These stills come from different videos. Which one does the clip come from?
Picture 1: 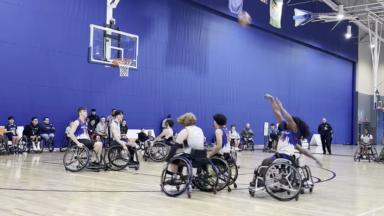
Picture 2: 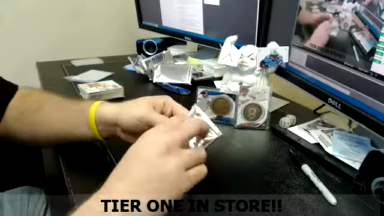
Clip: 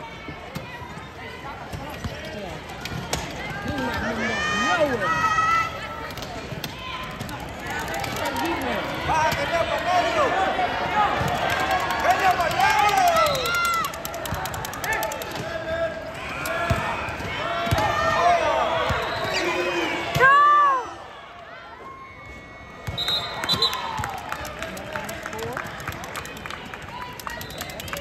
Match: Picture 1